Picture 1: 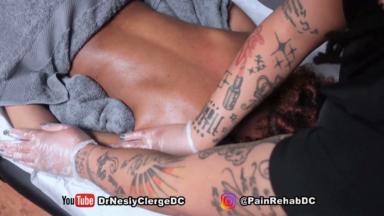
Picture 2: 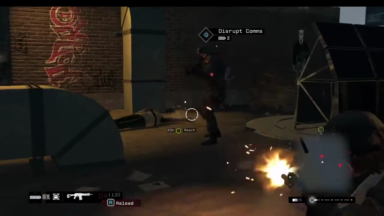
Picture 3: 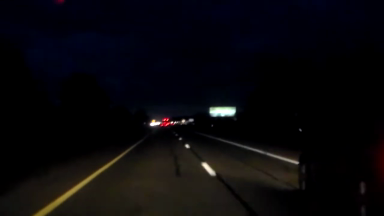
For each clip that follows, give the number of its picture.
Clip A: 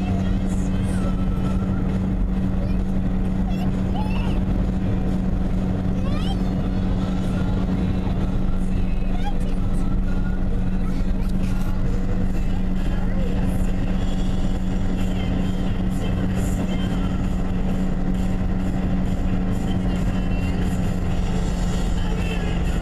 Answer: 3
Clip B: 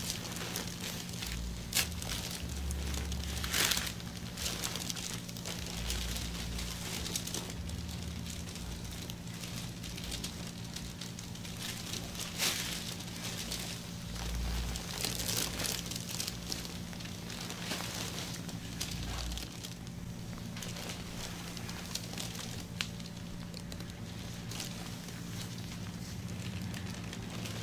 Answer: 1